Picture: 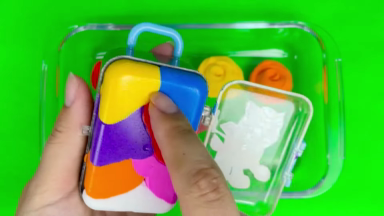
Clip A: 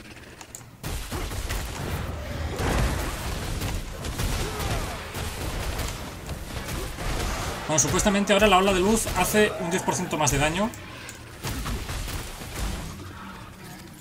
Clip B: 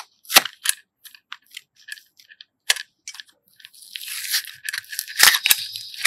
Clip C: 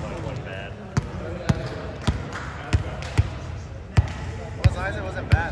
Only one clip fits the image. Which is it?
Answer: B